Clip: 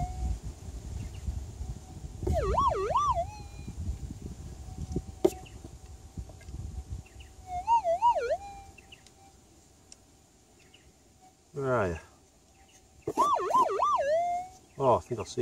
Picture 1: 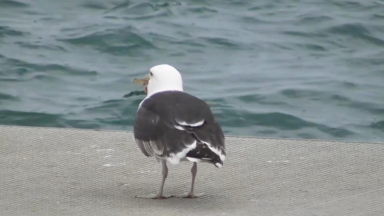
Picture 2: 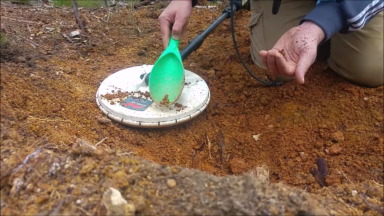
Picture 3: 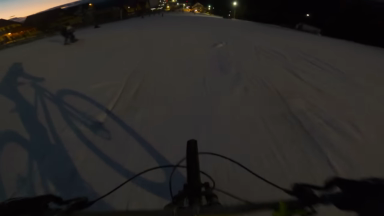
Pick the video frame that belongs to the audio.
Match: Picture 2